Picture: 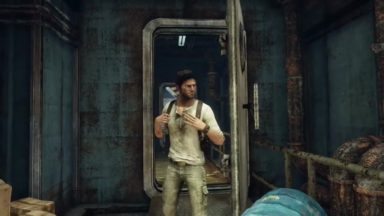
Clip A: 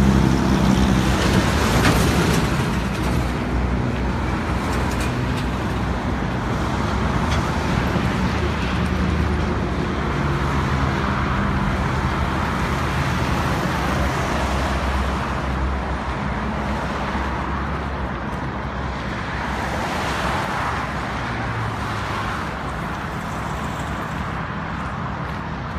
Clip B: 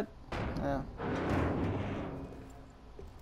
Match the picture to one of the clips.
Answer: B